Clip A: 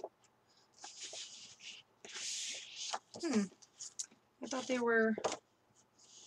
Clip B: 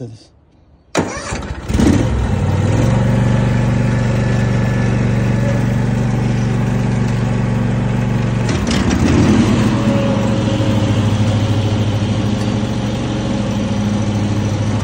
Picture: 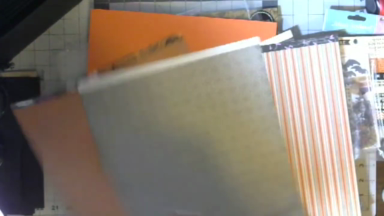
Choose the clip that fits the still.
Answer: A